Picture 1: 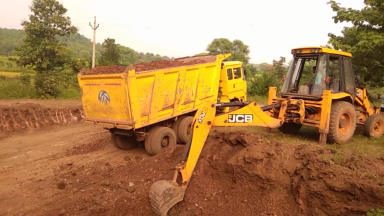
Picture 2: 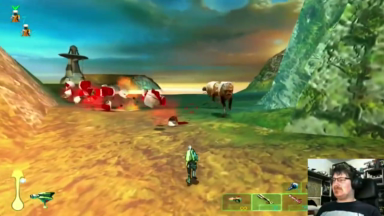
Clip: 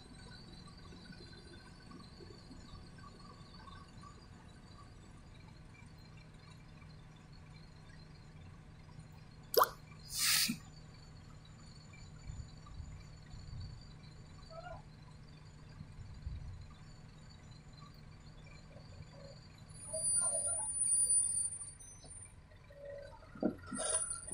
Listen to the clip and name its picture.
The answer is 1